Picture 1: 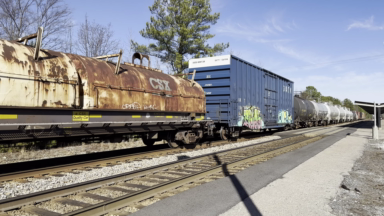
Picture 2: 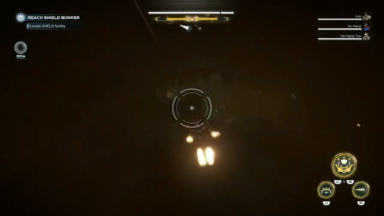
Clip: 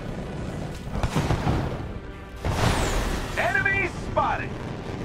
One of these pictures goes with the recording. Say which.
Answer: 2